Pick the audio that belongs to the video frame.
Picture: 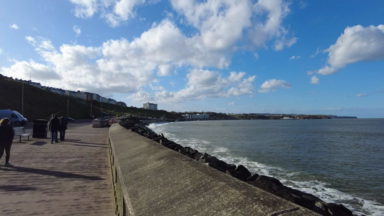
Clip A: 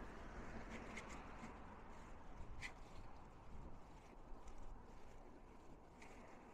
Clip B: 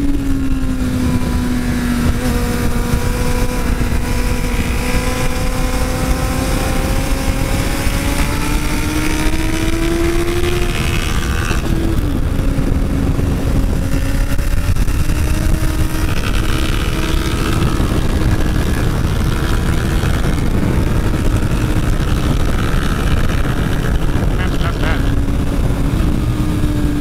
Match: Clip A